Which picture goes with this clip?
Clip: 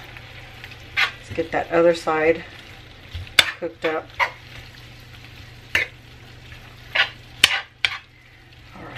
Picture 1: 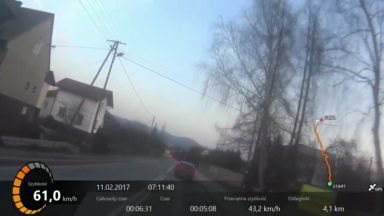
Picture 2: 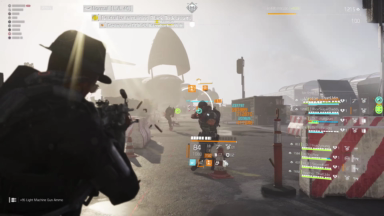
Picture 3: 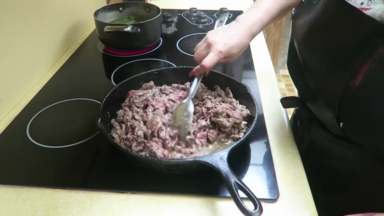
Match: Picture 3